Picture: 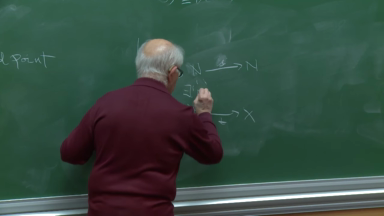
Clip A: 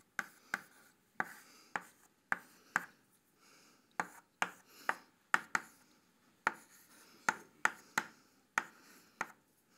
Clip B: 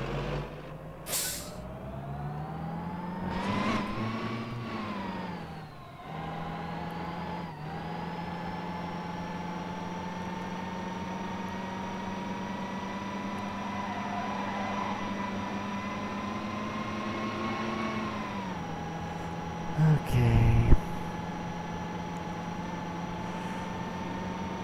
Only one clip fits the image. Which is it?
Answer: A